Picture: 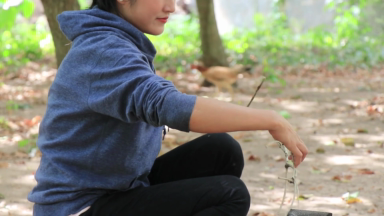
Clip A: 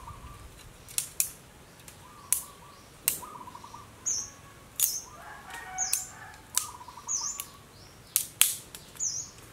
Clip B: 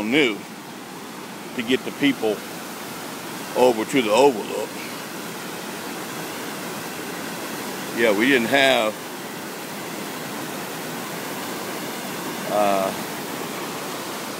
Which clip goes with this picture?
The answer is A